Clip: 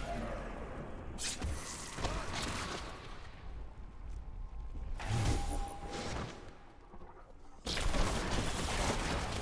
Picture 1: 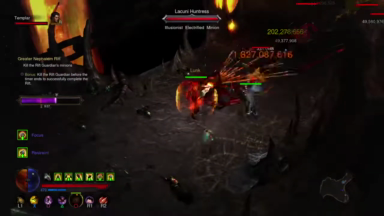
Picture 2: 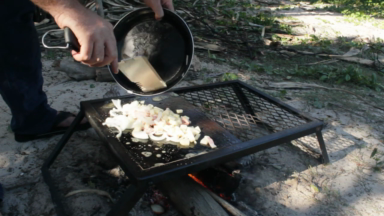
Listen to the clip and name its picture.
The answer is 1